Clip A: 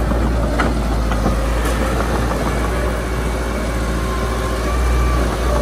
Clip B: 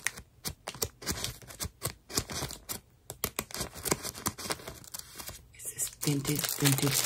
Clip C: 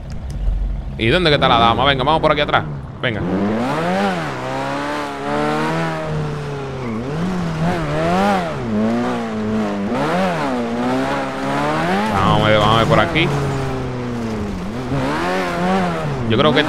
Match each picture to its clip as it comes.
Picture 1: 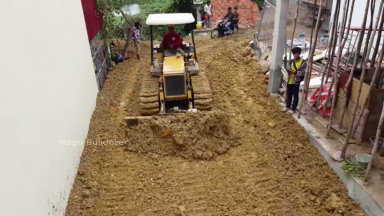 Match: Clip A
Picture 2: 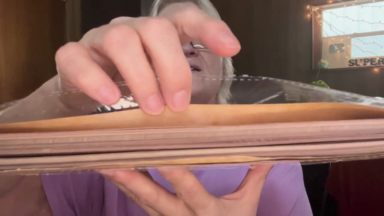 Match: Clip B